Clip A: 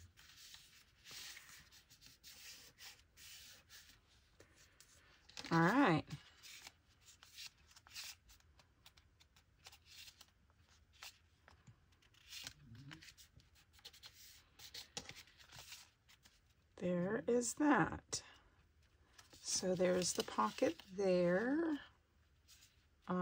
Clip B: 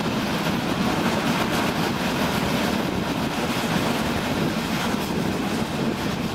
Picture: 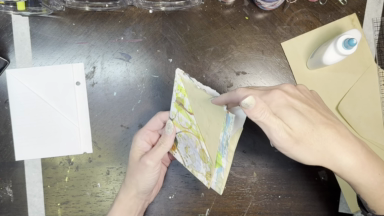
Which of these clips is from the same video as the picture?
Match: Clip A